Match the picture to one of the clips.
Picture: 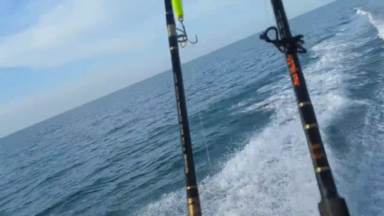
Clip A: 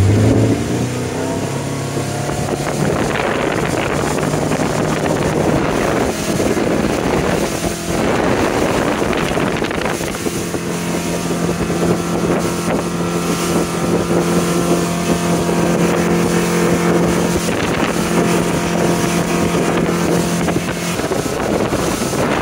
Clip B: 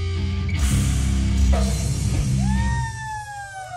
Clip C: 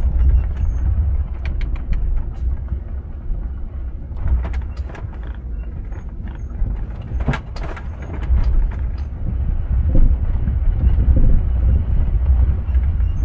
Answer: A